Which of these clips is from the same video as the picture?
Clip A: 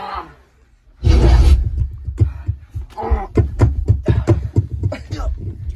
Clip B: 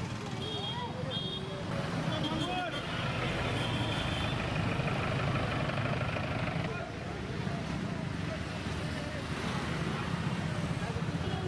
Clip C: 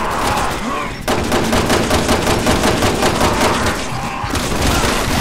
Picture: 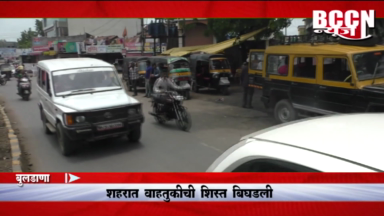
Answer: B